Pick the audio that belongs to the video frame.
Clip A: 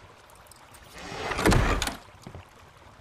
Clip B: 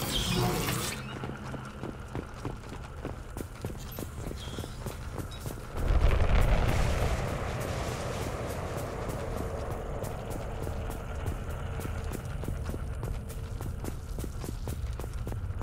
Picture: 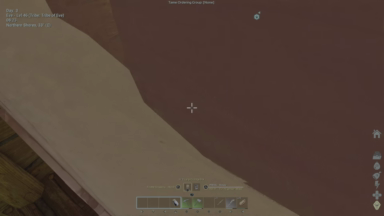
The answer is A